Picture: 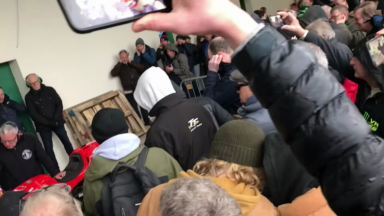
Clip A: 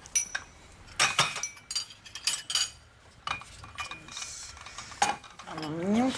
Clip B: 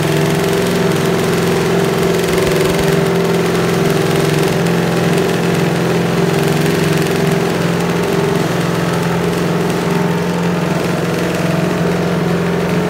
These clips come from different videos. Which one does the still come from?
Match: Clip B